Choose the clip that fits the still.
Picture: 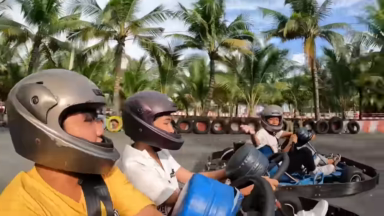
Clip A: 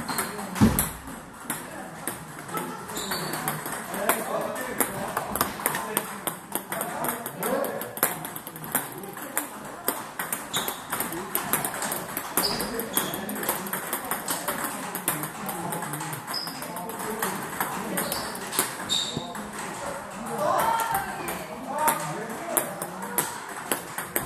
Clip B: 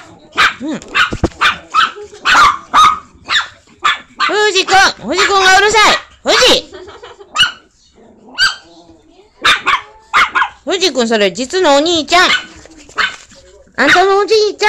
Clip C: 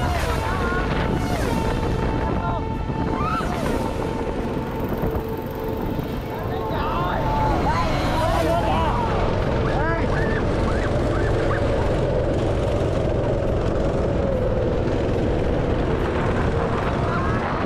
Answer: C